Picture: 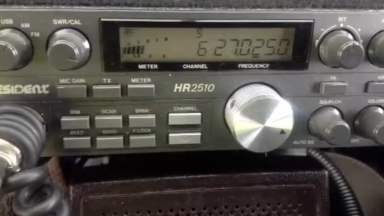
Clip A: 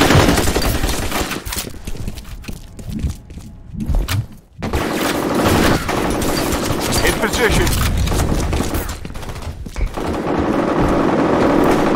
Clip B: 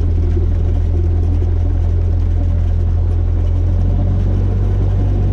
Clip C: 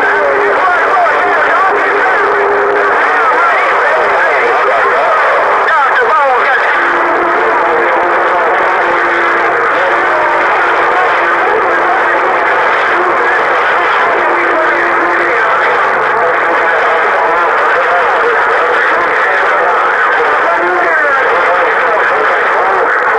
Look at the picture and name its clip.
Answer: C